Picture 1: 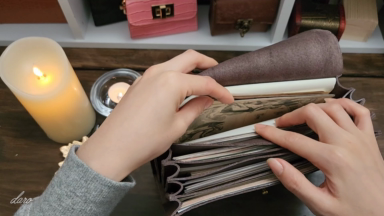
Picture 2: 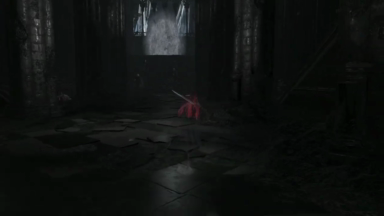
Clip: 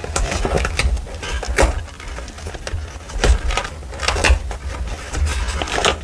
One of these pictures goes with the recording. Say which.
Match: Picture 1